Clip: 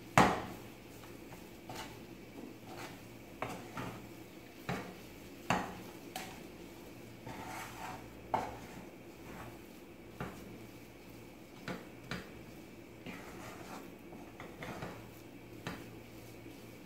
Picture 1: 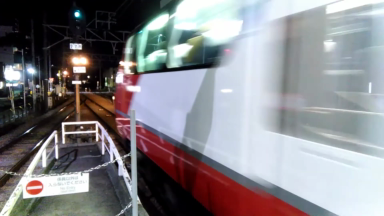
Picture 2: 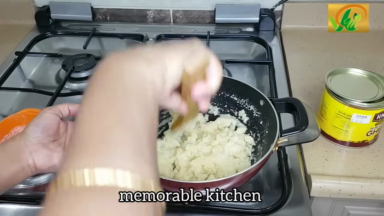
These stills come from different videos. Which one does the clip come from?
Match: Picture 2